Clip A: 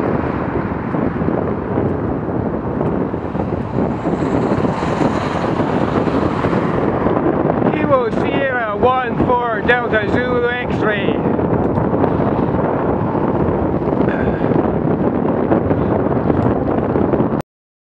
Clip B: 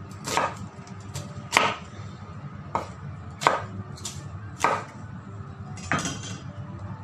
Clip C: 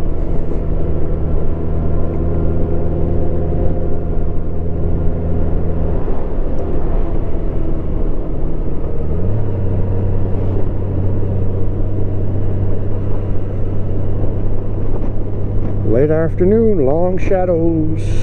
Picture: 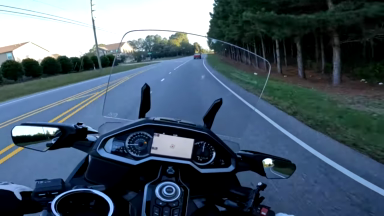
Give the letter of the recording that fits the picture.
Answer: C